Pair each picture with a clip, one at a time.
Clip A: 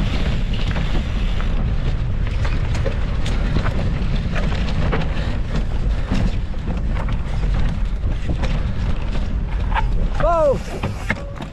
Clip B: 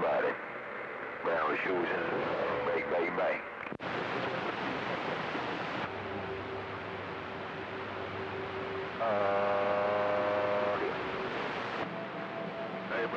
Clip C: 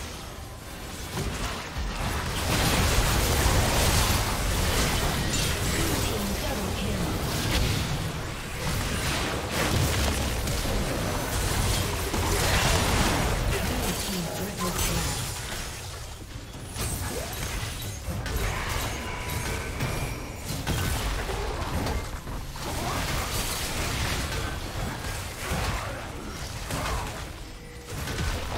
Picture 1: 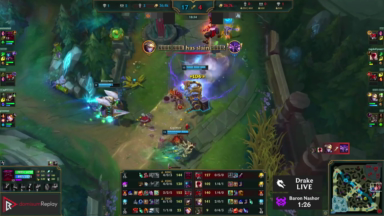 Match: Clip C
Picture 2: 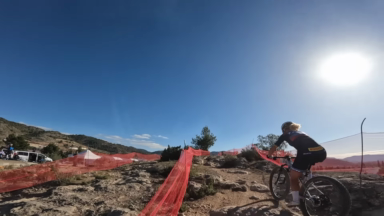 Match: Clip A